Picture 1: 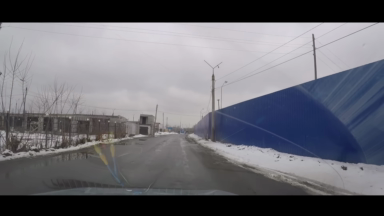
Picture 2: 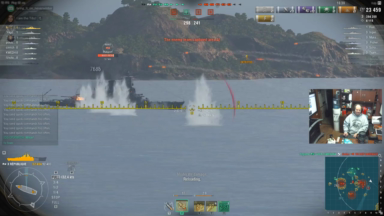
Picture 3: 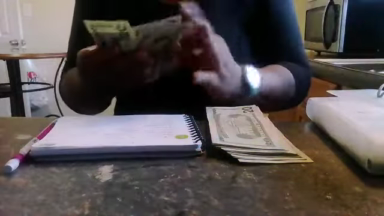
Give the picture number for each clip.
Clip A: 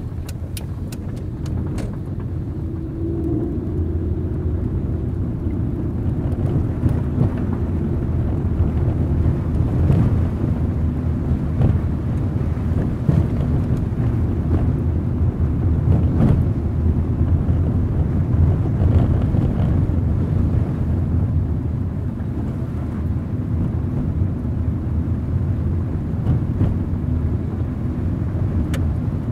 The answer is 1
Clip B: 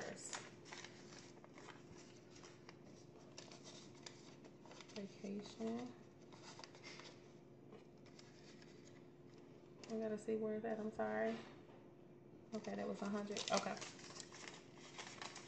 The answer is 3